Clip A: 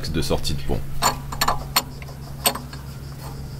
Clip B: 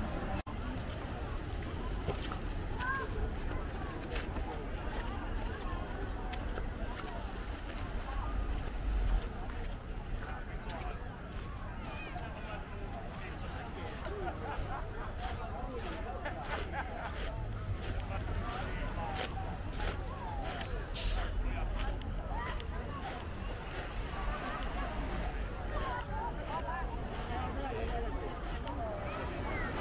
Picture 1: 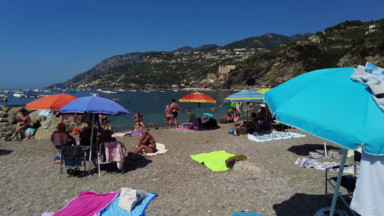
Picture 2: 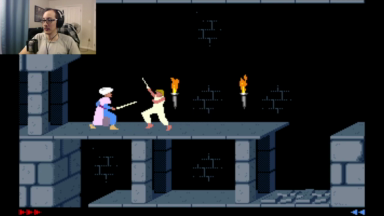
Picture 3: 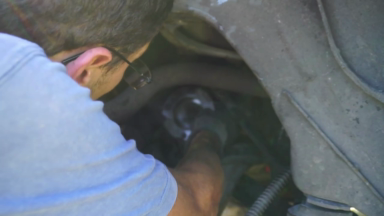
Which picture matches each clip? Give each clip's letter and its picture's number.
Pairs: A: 3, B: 1